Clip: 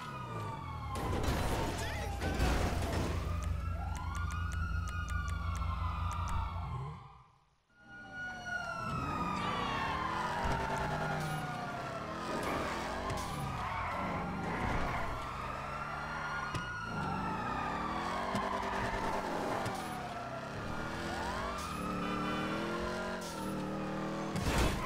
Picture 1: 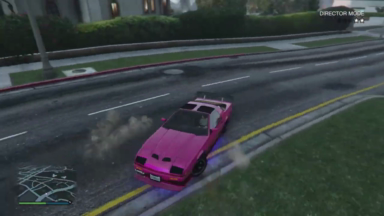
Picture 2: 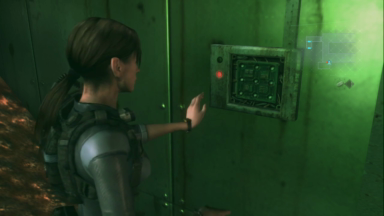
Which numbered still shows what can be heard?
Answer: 1